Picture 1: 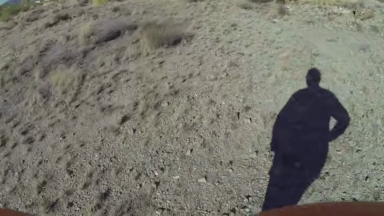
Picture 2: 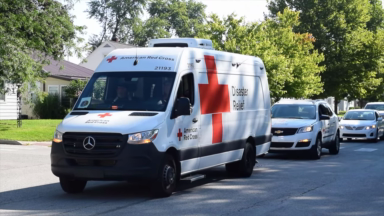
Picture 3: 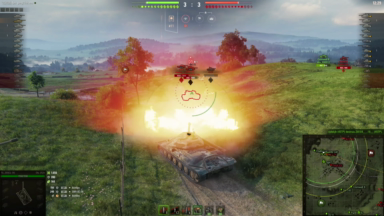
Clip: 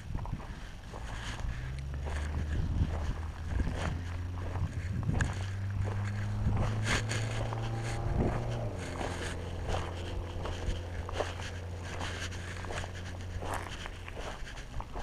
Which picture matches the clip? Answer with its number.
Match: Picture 1